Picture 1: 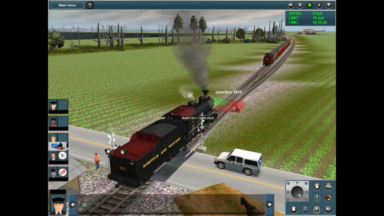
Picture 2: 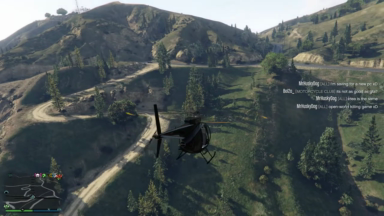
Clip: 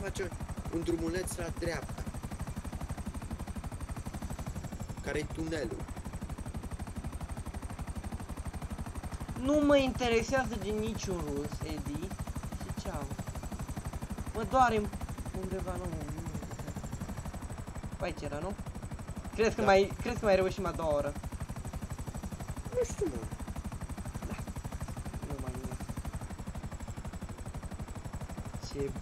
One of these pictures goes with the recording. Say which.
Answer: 2